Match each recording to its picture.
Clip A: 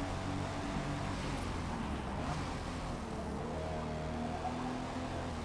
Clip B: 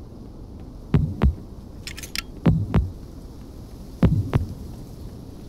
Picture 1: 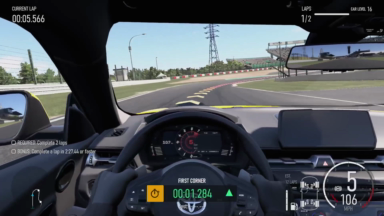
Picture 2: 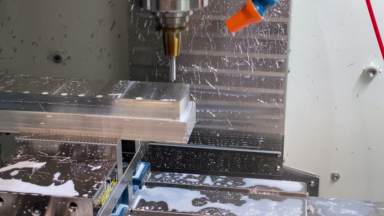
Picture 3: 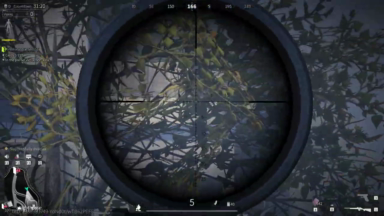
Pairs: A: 1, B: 3